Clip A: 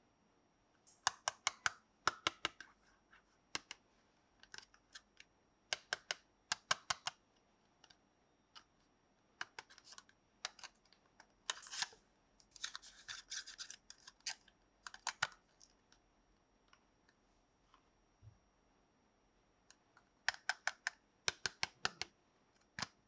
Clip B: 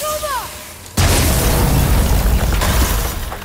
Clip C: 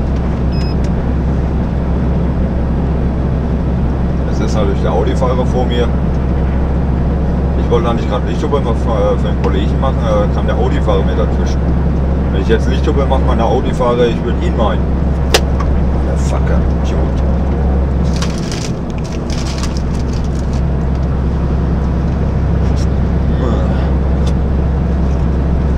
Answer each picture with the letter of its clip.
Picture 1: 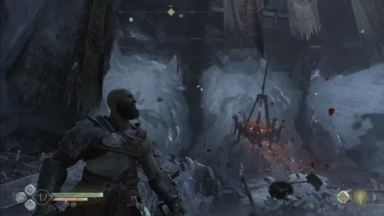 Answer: B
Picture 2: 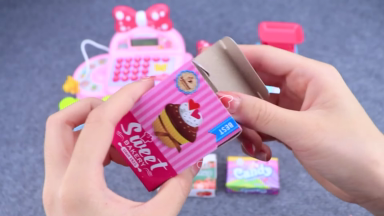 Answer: A